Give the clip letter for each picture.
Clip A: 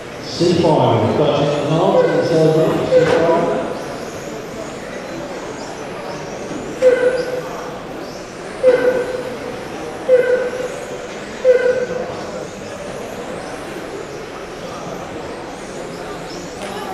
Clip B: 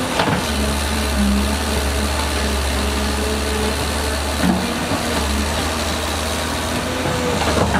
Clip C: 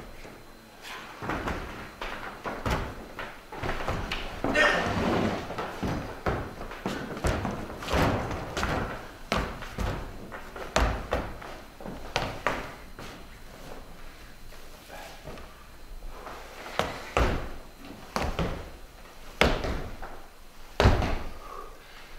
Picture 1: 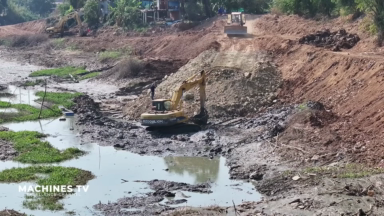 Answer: B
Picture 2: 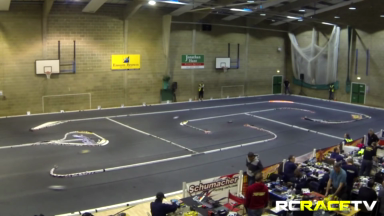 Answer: A